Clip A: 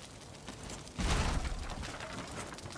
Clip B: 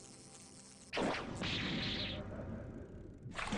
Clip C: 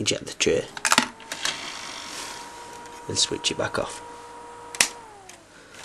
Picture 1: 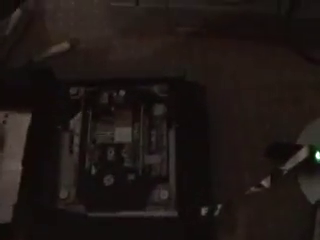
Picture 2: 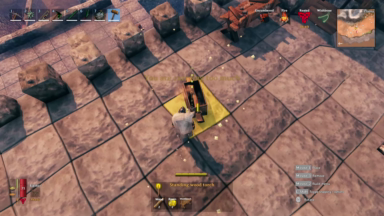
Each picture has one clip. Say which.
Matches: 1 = C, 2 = A